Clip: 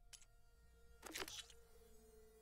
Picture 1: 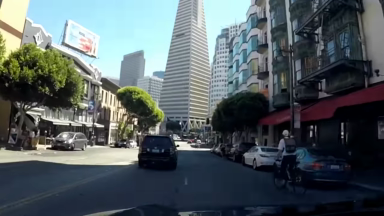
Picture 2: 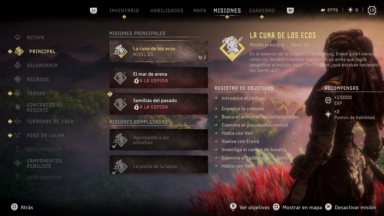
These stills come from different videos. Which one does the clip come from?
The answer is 2